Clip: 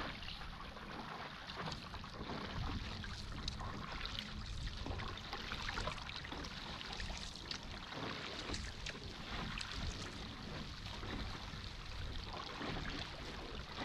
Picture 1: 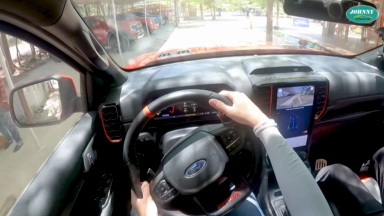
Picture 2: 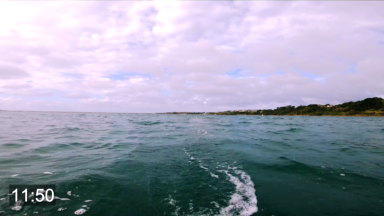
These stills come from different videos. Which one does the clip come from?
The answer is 2